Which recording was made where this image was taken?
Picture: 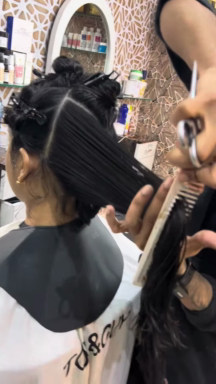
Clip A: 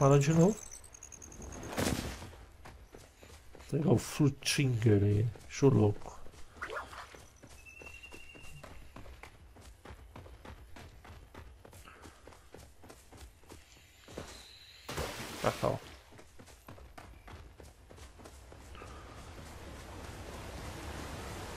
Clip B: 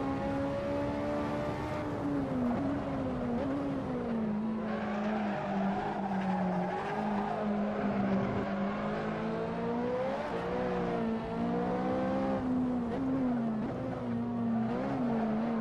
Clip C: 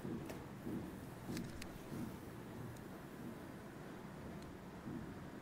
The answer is C